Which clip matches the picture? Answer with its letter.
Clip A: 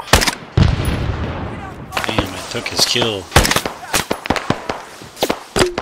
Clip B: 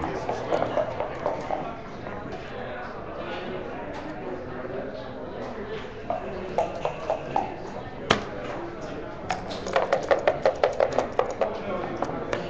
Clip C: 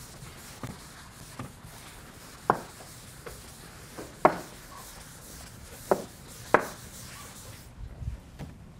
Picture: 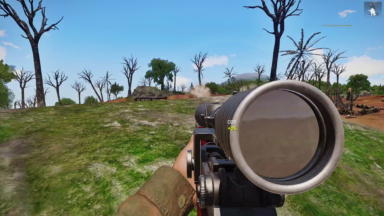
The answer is A